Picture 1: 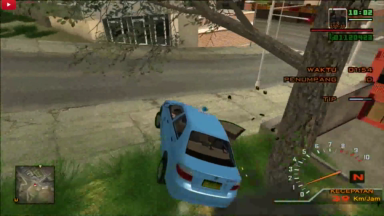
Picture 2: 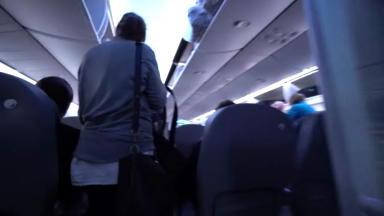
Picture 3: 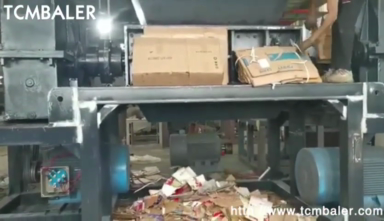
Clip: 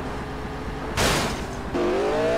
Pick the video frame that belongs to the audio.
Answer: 1